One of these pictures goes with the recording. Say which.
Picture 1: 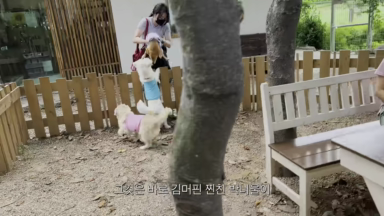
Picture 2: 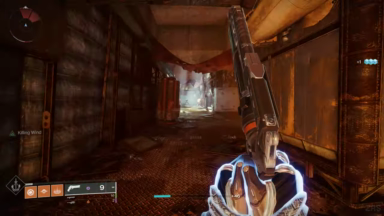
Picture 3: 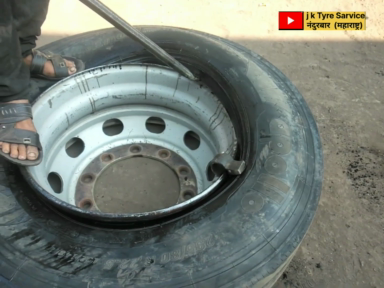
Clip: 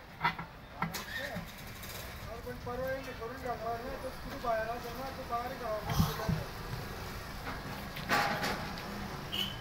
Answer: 3